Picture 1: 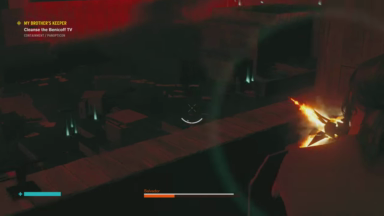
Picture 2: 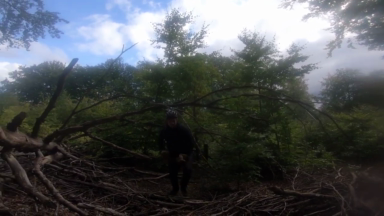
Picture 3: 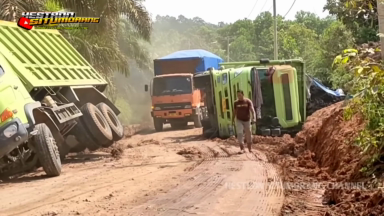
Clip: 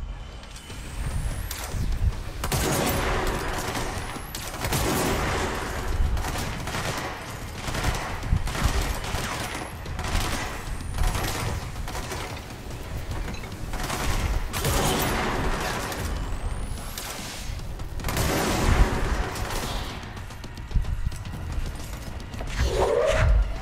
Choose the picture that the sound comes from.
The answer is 1